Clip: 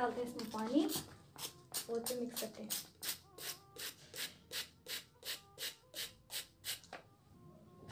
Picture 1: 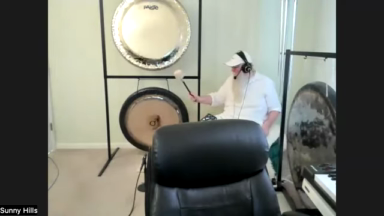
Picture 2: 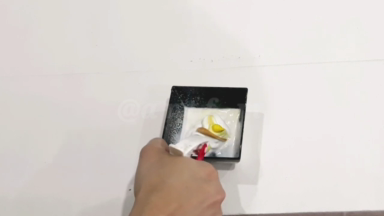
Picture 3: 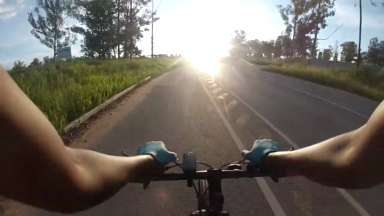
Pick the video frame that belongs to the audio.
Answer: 2